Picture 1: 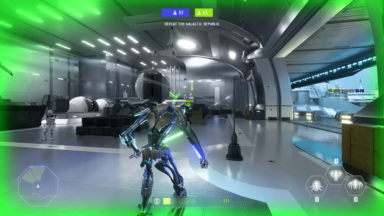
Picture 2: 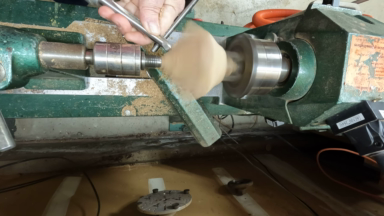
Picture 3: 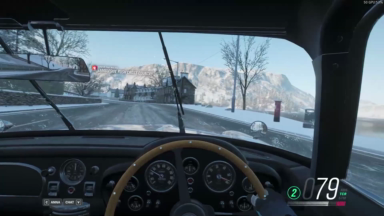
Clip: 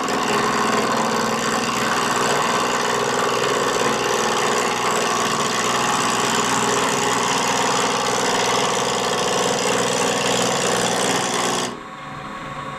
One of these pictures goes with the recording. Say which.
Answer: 2